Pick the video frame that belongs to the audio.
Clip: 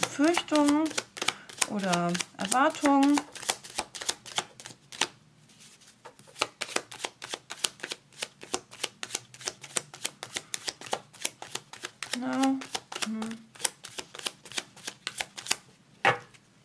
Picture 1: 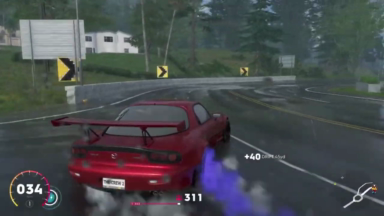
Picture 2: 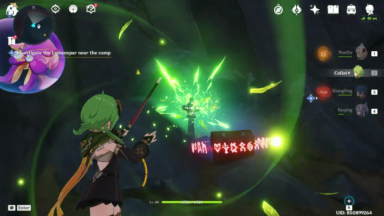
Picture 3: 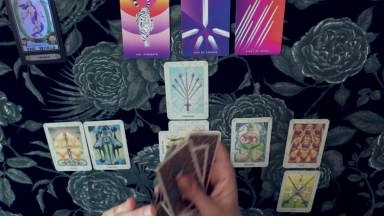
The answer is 3